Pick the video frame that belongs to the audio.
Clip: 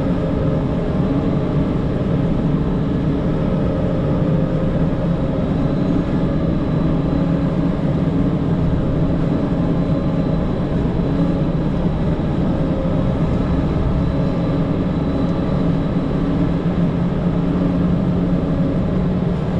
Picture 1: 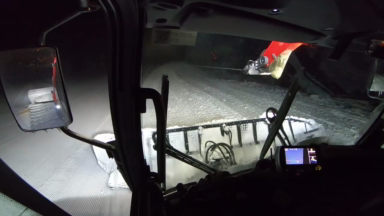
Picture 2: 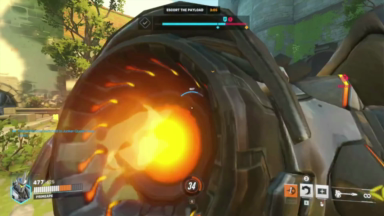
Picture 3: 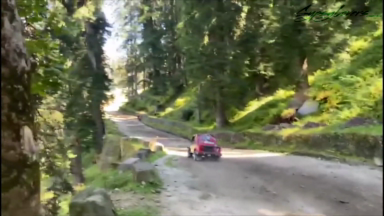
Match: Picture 1